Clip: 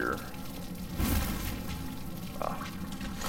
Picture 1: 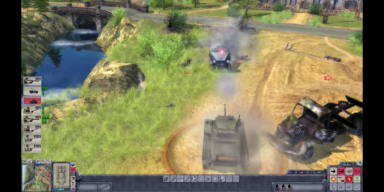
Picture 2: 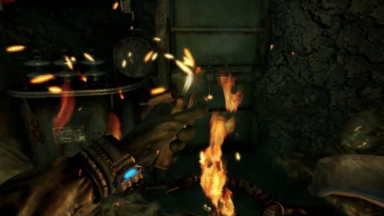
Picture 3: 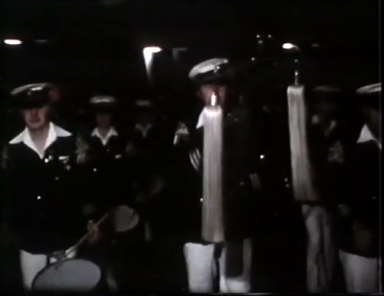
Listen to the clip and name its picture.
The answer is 2